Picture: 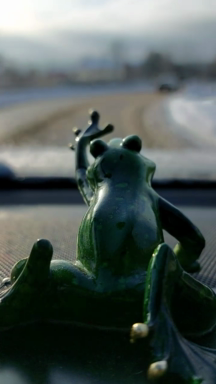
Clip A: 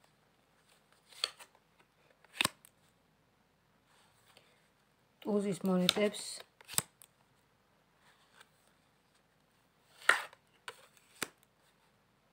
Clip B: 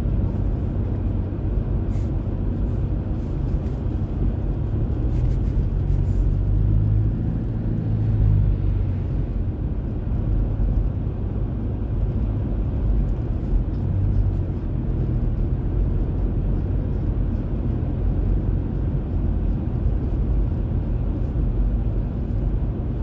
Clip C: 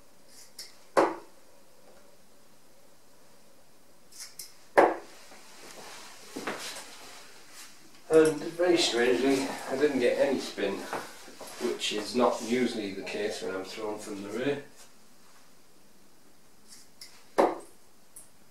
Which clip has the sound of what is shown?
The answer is B